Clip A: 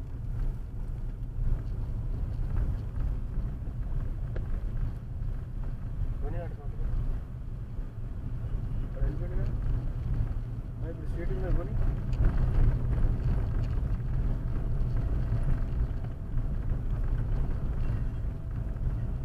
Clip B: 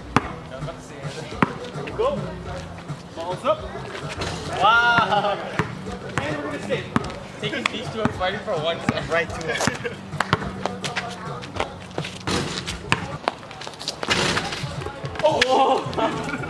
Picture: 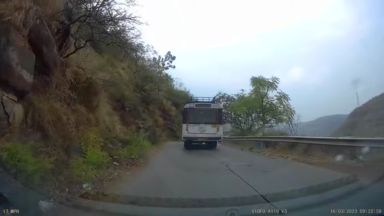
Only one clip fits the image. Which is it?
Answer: A